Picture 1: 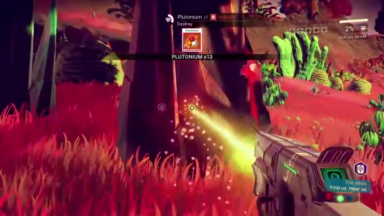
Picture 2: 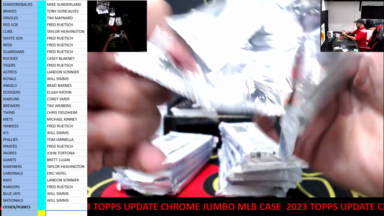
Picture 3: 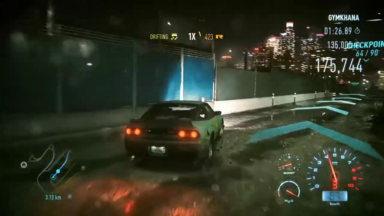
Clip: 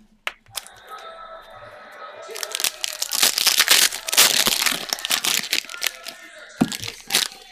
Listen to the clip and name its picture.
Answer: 2